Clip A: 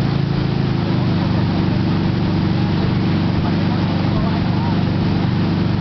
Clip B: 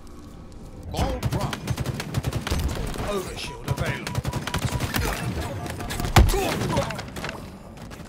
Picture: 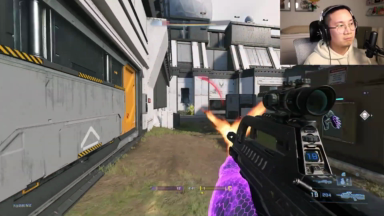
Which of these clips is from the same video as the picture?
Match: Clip B